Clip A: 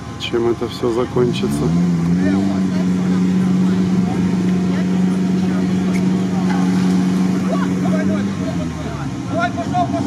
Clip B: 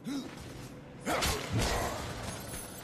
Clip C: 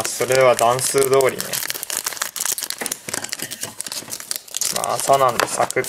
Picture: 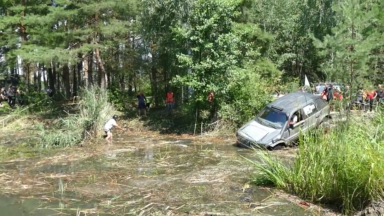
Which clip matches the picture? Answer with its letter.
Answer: A